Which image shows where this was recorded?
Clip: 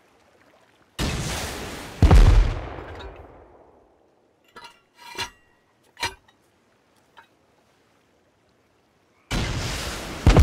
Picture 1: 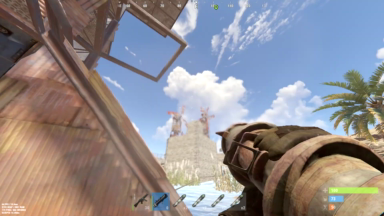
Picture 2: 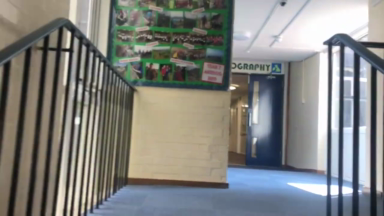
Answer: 1